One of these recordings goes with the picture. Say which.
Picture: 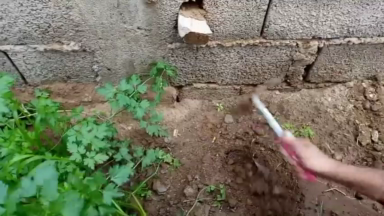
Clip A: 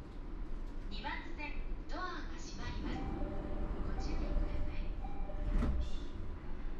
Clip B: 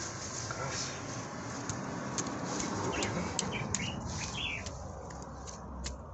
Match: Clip B